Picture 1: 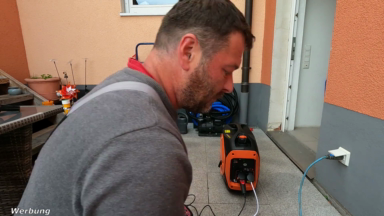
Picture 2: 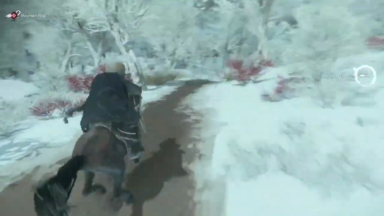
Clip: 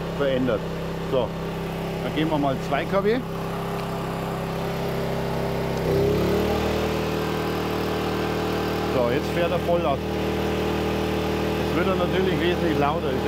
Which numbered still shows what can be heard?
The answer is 1